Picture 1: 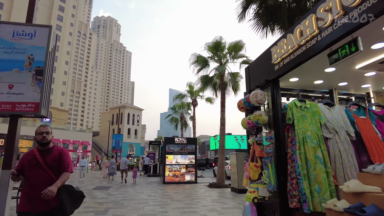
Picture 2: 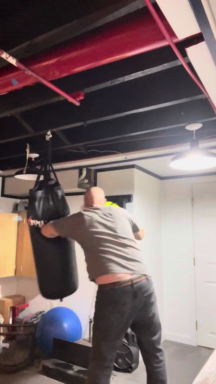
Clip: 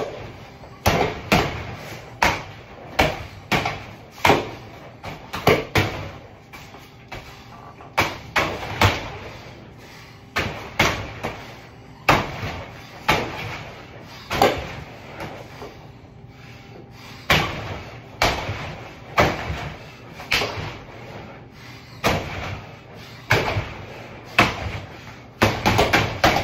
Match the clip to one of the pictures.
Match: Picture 2